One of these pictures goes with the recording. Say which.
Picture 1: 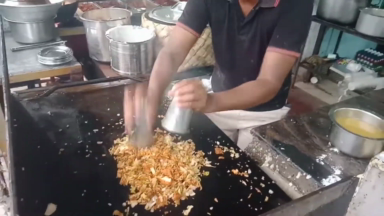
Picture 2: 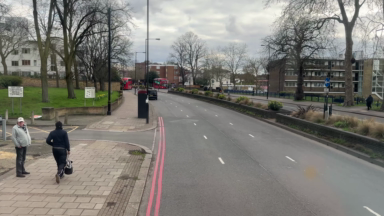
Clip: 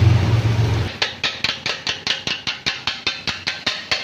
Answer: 1